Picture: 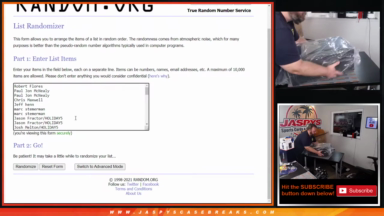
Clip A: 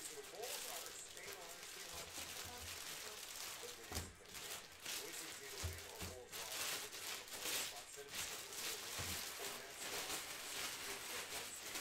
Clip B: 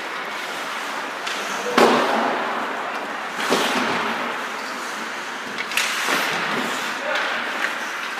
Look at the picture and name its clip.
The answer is A